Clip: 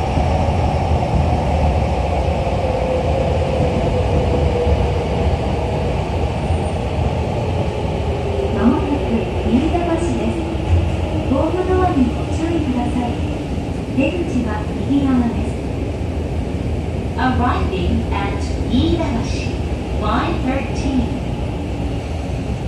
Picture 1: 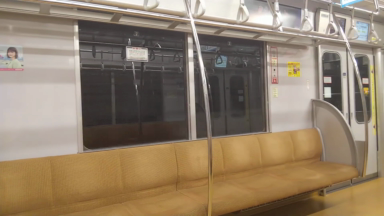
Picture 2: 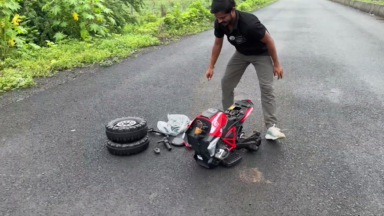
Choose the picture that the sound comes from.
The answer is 1